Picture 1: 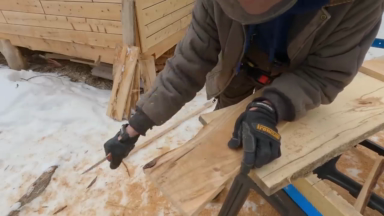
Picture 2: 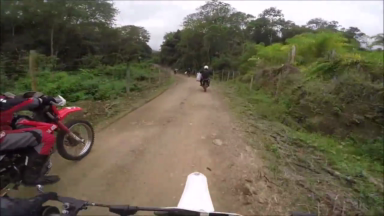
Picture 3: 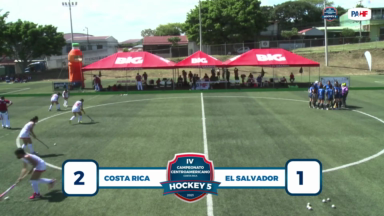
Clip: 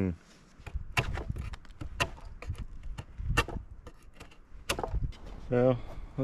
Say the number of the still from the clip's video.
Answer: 1